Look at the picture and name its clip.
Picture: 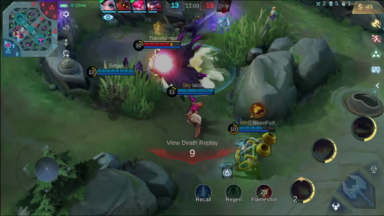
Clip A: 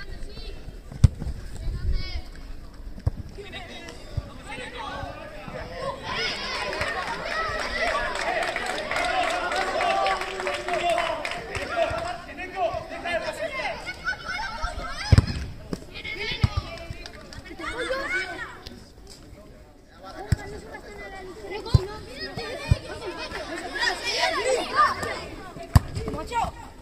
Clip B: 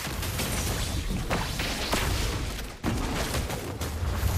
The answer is B